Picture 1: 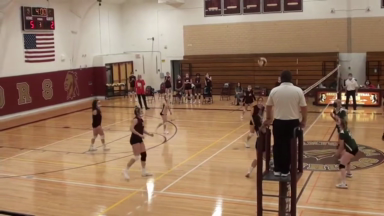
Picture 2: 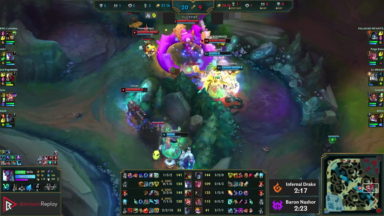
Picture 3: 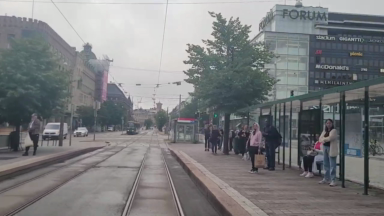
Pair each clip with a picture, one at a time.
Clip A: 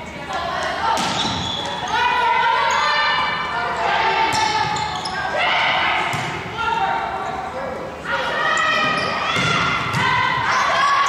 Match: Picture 1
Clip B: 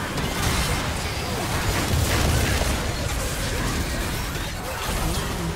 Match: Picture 2